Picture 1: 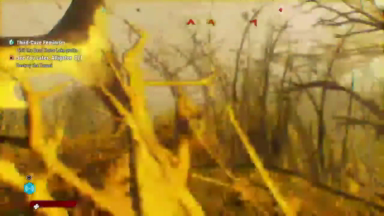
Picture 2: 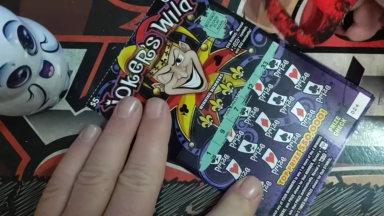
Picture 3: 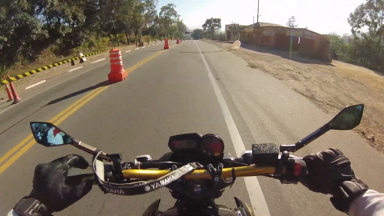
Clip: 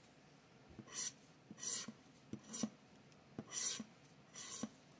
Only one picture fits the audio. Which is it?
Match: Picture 2